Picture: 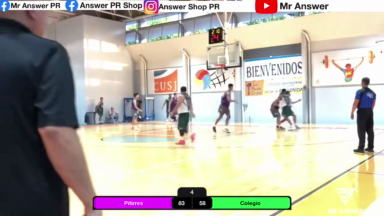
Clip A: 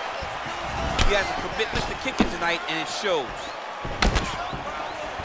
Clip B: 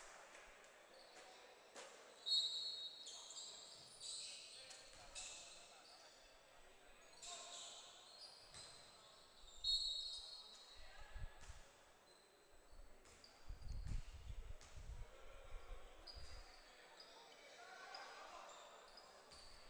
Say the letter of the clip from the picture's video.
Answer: B